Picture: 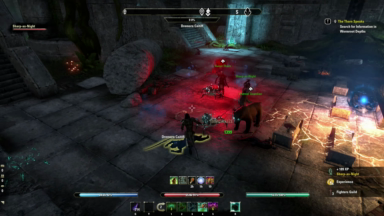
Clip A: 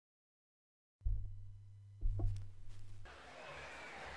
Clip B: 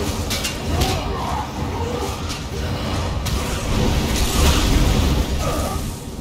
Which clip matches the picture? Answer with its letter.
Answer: B